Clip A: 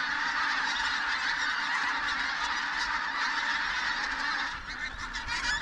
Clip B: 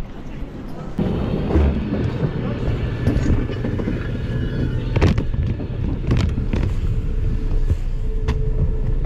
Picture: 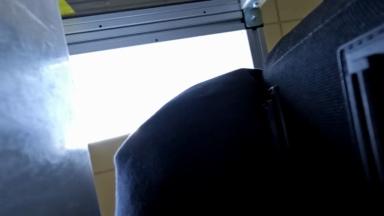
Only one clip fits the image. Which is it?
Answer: B